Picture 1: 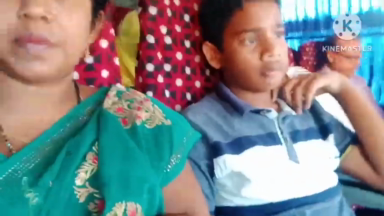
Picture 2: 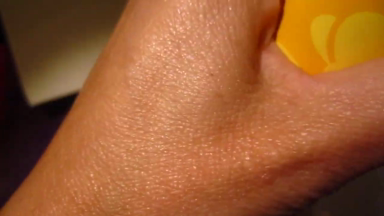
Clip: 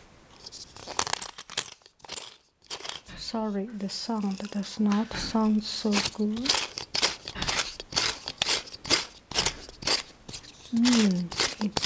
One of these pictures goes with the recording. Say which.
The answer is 2